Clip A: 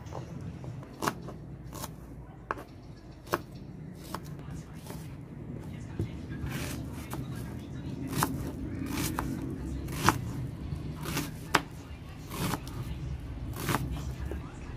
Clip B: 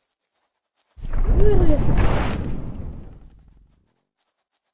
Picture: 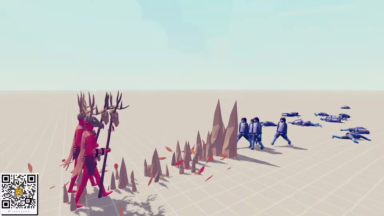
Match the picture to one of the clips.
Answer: B